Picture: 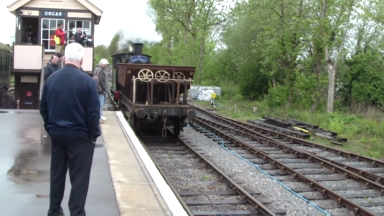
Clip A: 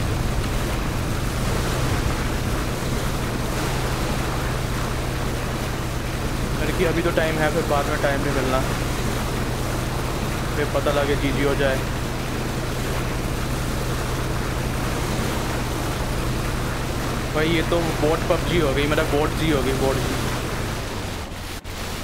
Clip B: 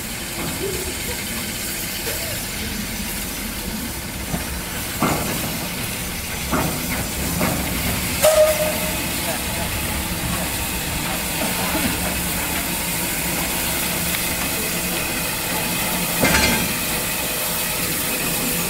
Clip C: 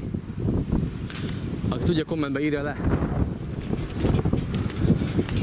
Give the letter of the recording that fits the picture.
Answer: B